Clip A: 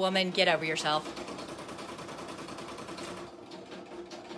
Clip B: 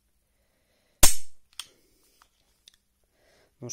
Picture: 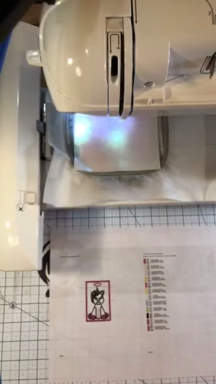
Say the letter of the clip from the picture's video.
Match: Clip A